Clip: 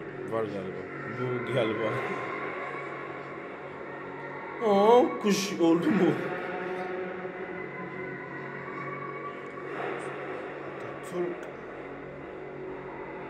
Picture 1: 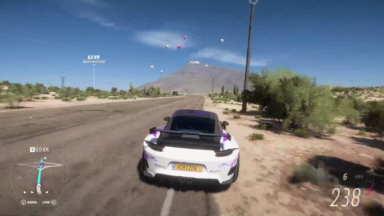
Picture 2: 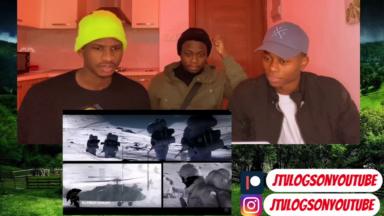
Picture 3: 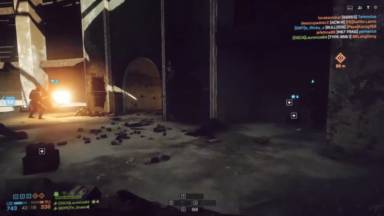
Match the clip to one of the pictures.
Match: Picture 2